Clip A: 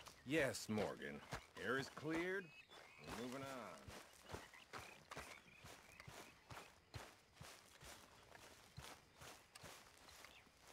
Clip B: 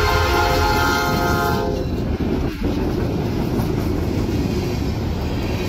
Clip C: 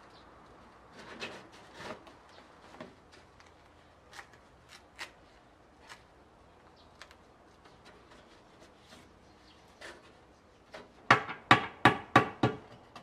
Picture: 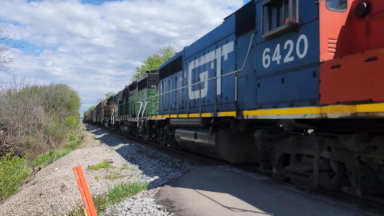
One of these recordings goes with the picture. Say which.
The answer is B